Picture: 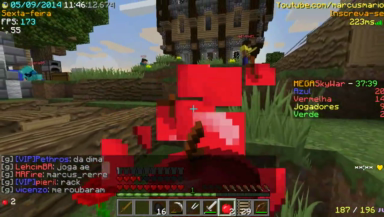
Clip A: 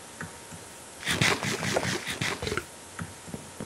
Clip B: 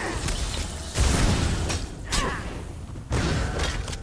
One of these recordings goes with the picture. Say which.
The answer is A